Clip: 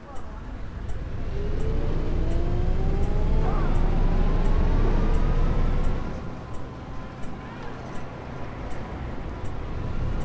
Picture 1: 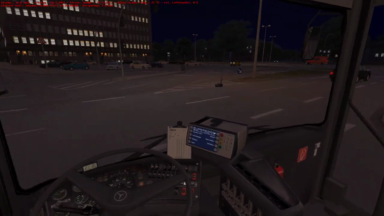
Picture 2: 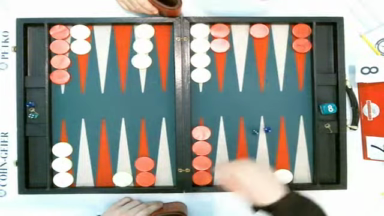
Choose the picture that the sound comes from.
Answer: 1